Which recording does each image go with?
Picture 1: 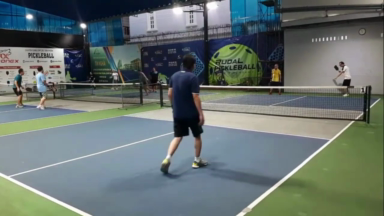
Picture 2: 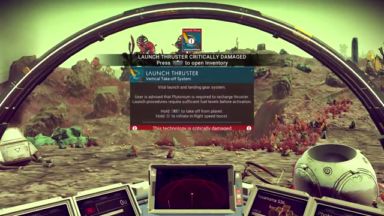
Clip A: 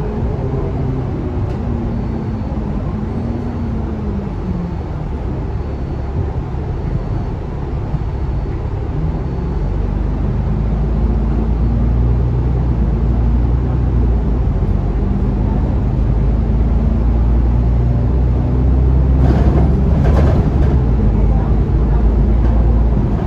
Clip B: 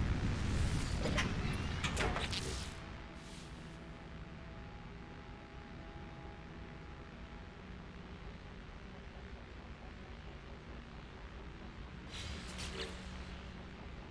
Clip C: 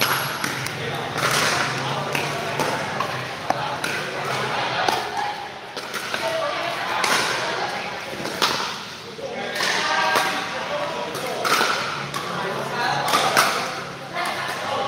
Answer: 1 C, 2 B